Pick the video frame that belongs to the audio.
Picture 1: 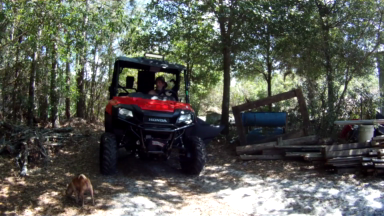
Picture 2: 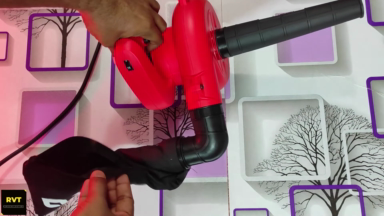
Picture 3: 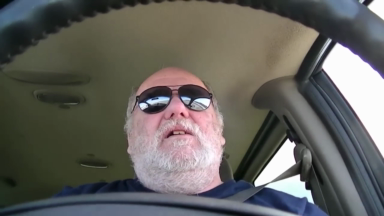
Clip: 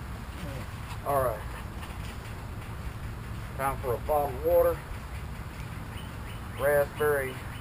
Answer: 1